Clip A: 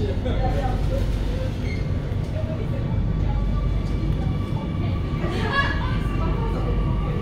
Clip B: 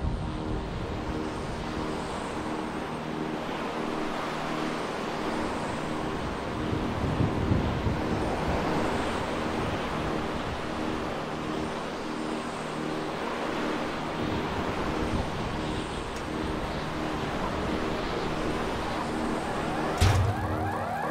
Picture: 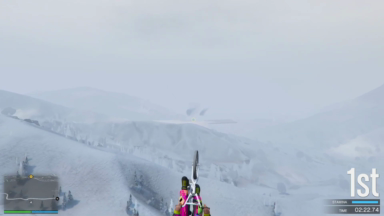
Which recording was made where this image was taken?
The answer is B